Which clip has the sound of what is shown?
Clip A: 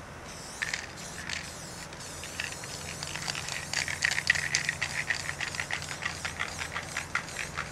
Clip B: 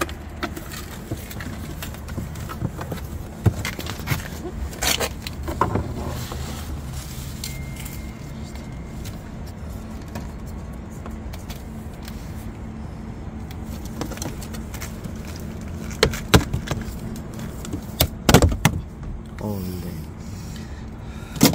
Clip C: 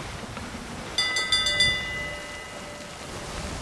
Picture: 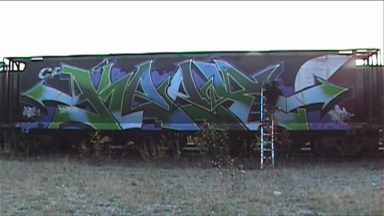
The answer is A